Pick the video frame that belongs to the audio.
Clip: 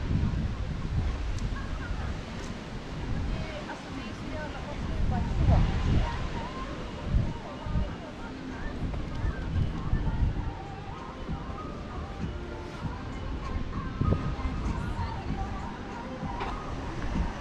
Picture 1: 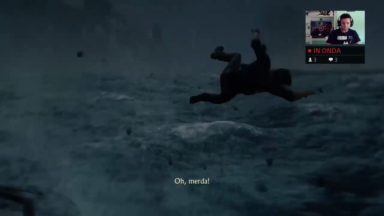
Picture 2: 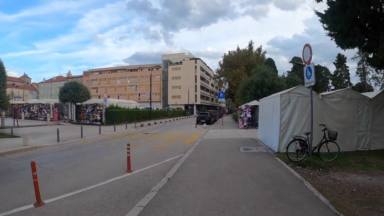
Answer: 2